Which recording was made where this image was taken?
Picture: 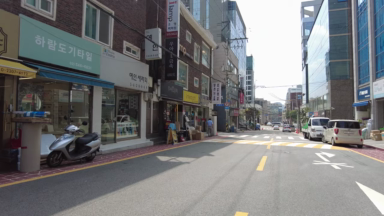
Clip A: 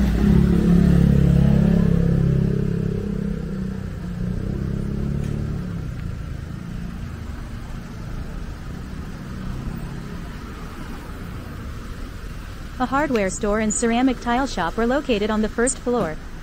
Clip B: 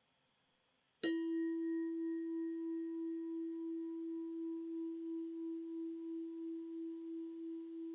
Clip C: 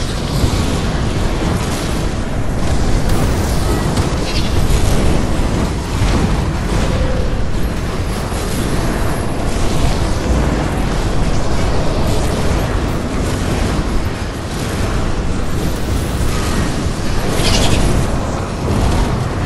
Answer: A